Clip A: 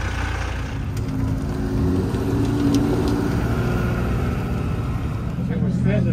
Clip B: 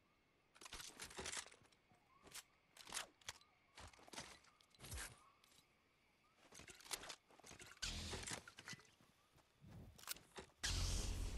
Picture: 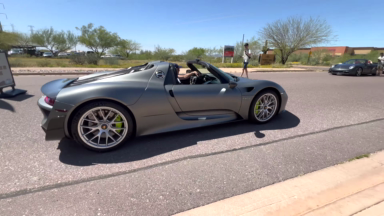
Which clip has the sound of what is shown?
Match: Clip A